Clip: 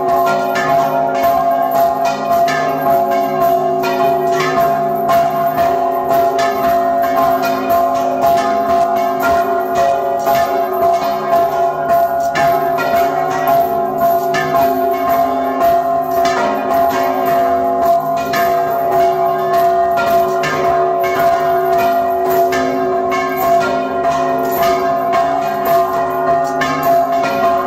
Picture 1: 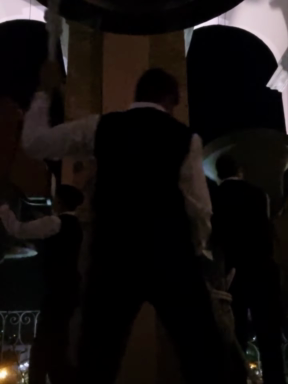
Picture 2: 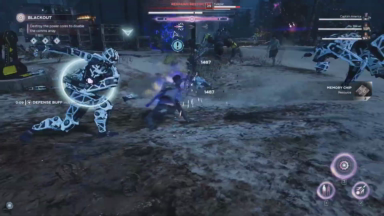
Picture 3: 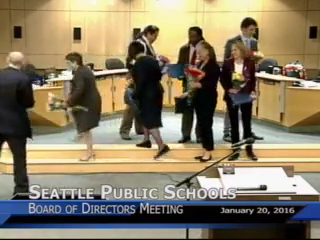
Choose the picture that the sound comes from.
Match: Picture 1